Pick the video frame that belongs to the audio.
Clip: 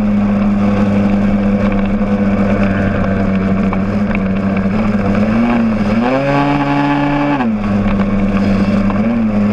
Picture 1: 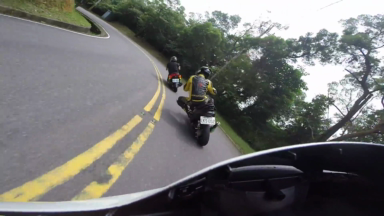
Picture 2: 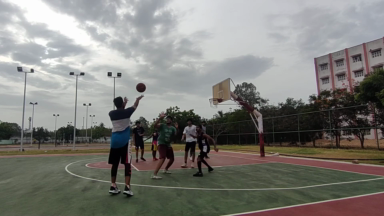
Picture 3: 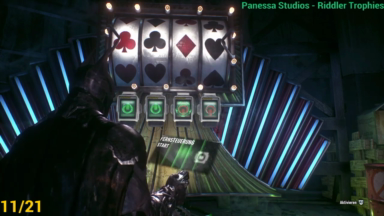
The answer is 1